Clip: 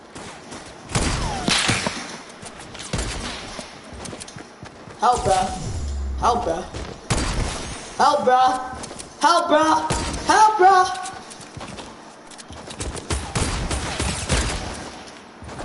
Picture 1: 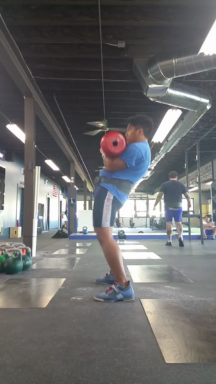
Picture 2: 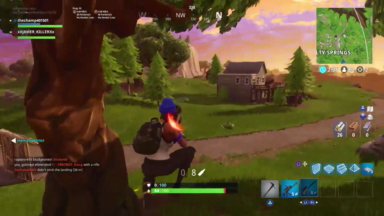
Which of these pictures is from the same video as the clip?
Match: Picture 2